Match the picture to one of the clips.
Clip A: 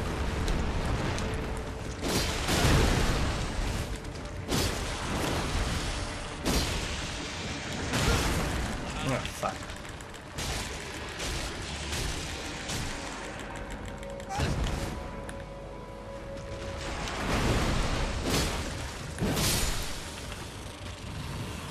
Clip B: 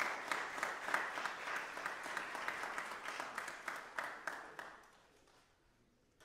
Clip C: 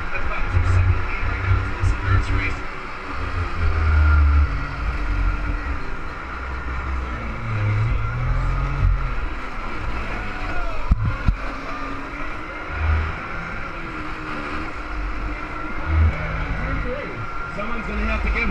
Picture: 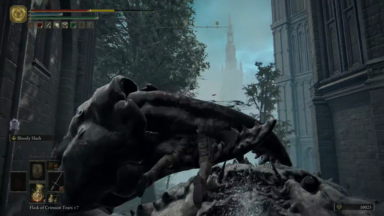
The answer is A